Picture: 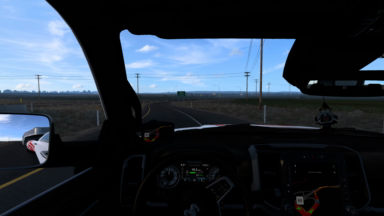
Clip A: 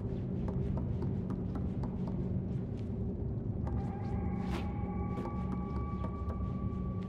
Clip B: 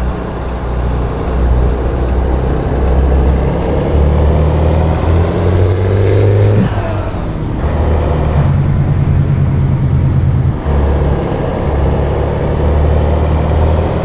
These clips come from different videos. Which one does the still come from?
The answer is B